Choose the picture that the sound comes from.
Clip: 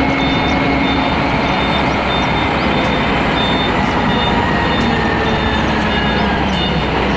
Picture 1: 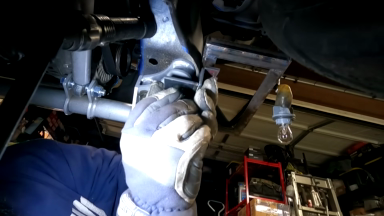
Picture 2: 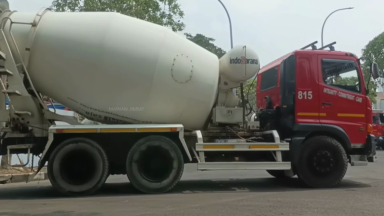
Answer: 2